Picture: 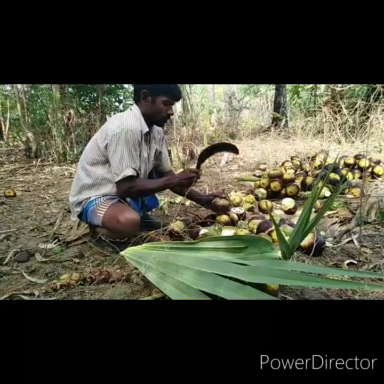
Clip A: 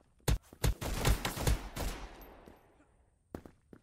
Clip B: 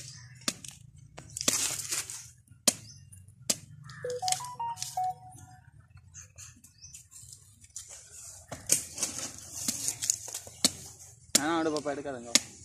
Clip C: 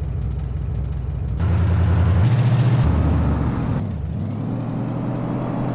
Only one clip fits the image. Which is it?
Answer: B